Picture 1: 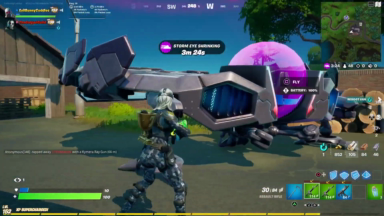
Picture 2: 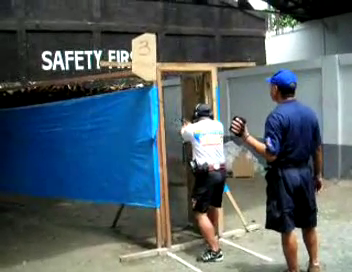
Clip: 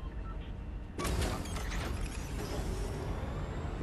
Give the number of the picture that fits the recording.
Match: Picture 1